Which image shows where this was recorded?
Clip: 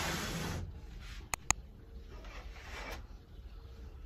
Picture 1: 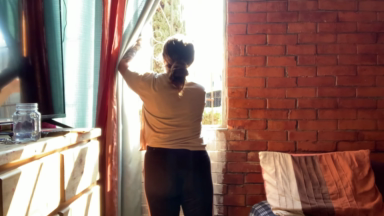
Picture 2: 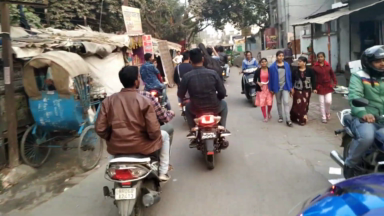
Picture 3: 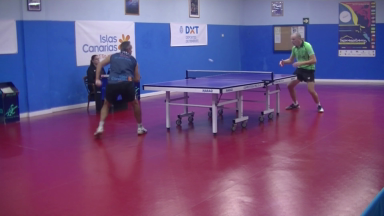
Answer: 1